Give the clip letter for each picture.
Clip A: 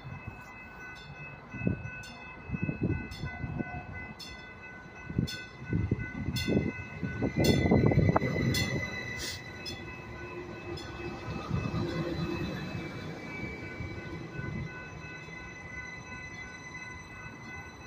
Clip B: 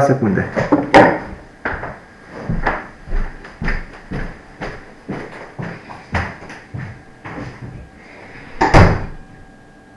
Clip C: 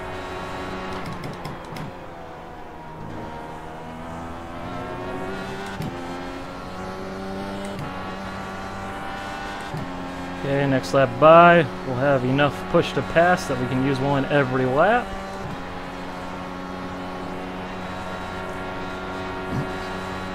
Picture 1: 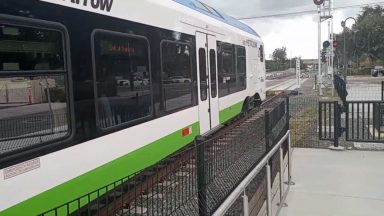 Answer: A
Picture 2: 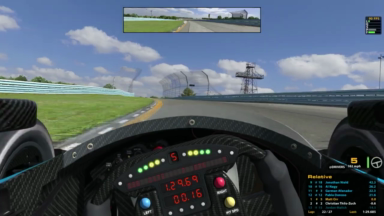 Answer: C